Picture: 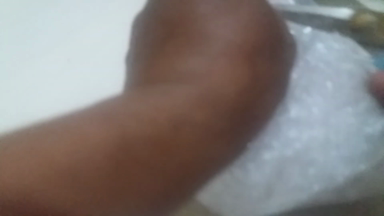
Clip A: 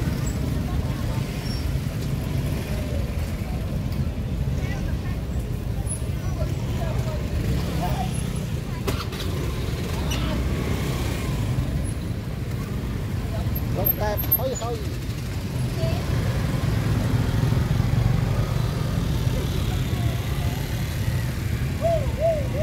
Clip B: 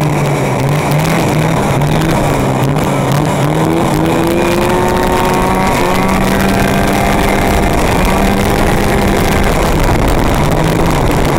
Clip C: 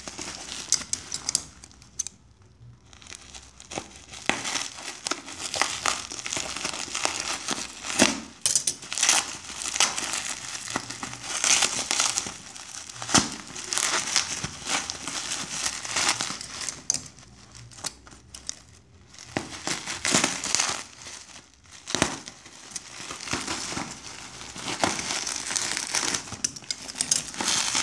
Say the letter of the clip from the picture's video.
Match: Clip C